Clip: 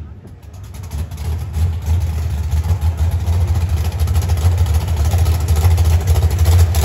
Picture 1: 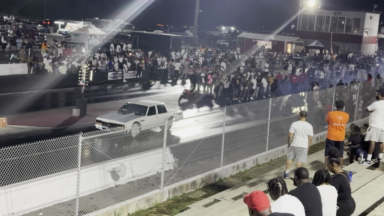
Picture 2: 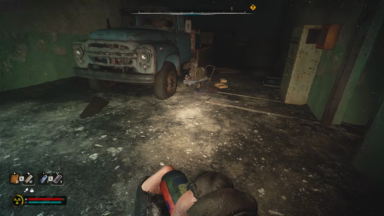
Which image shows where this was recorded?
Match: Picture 1